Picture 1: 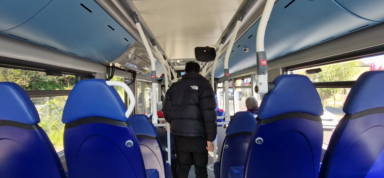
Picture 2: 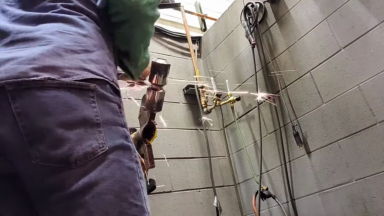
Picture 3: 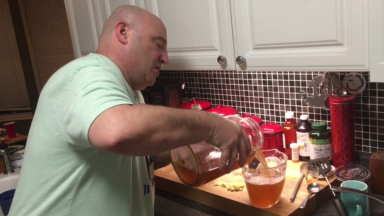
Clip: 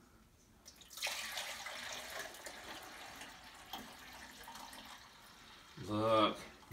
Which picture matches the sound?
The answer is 3